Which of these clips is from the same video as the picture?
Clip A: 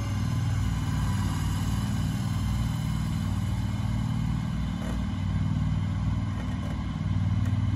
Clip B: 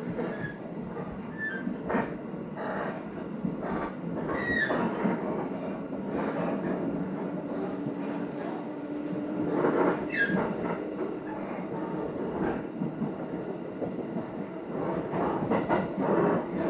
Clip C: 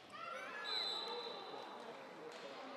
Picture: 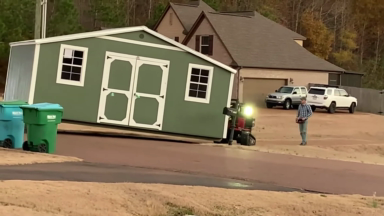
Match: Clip A